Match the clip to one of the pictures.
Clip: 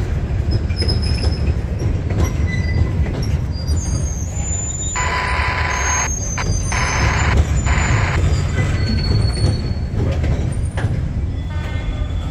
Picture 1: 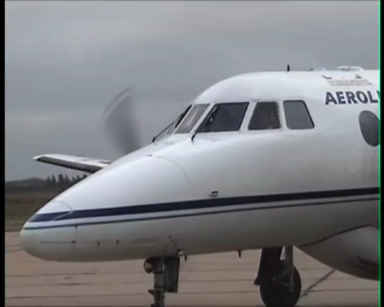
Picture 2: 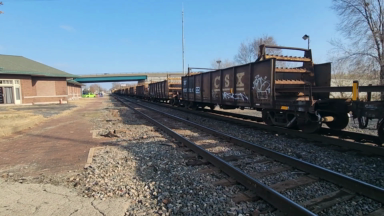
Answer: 2